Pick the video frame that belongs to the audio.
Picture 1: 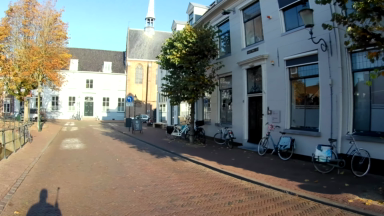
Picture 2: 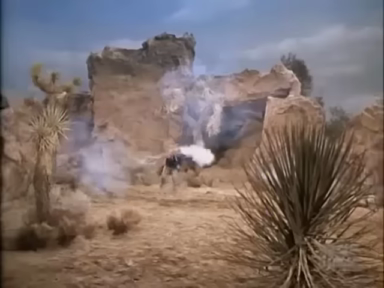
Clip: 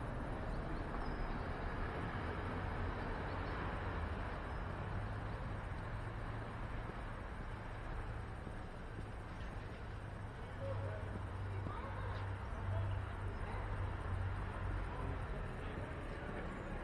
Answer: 1